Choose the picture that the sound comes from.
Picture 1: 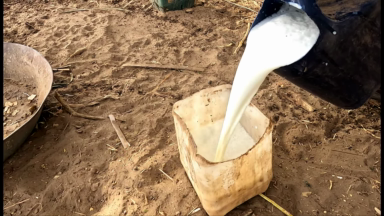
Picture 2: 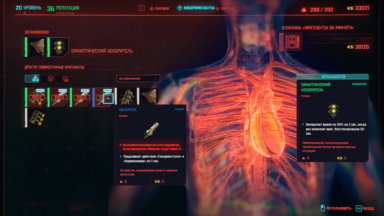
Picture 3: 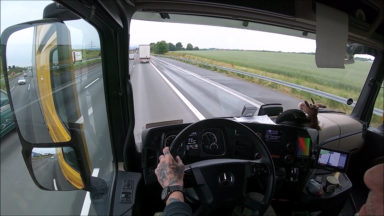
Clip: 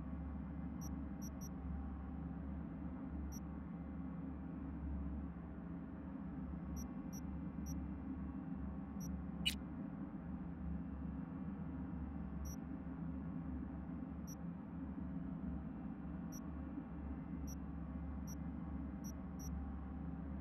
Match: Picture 2